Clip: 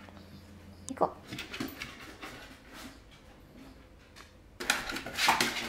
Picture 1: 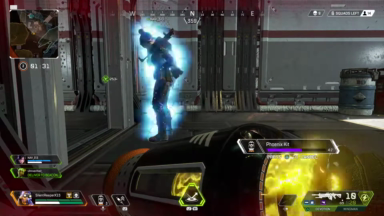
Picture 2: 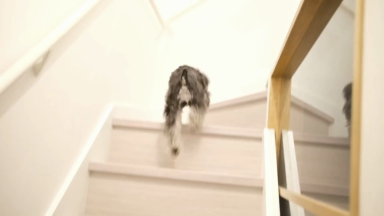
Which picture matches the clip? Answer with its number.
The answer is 2